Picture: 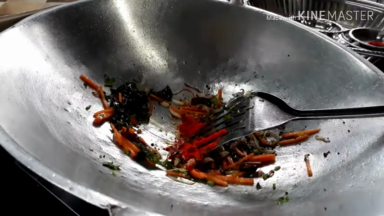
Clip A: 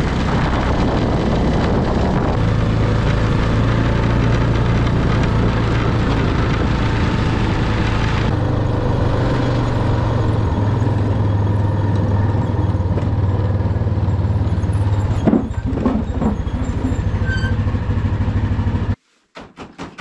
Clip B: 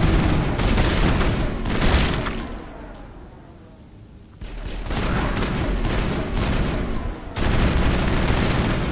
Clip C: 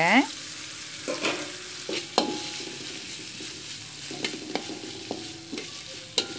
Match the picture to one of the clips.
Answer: C